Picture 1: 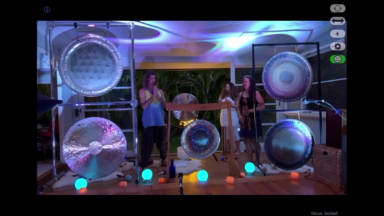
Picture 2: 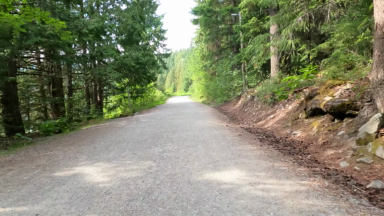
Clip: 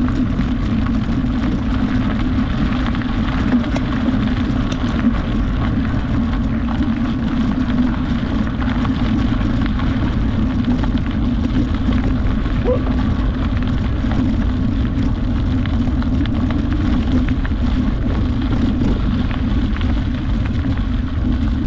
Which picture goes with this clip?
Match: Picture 2